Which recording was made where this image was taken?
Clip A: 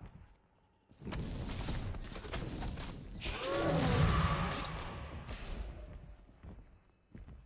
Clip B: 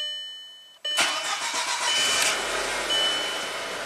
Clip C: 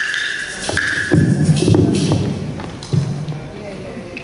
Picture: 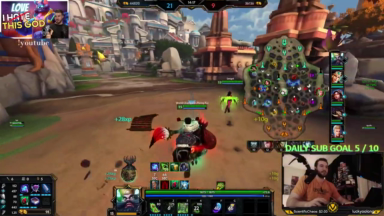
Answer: A